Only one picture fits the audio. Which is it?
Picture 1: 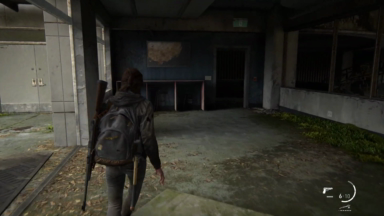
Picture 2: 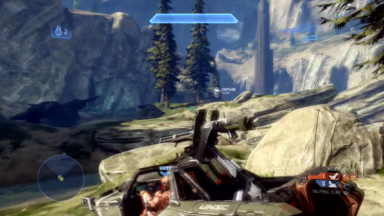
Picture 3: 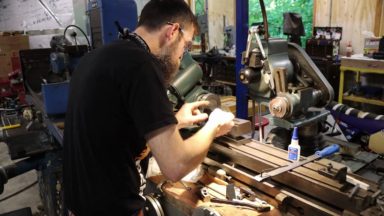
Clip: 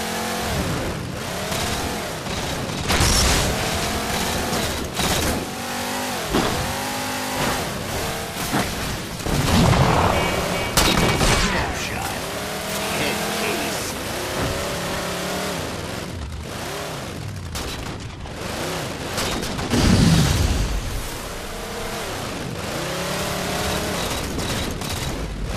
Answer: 2